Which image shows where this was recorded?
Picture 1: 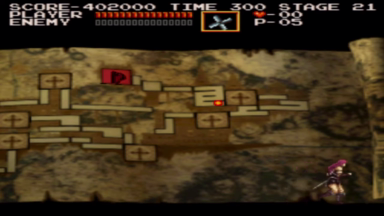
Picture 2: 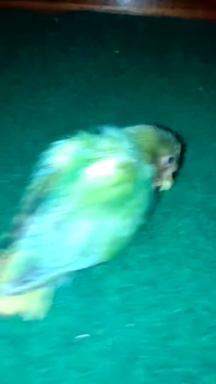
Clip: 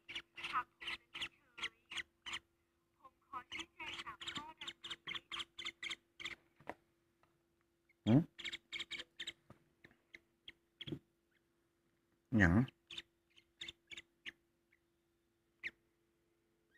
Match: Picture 2